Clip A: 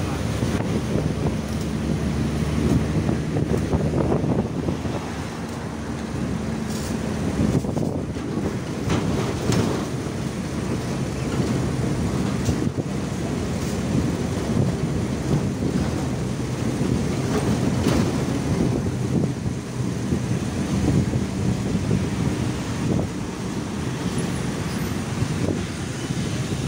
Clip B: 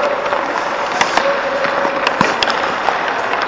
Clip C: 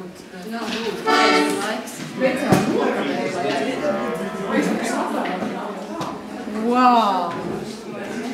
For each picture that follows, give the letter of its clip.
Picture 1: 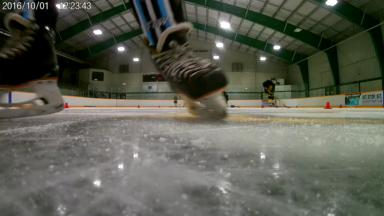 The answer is B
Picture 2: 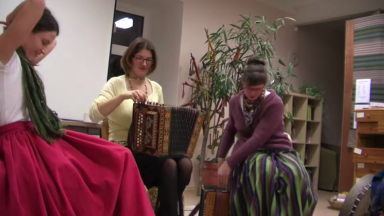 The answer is C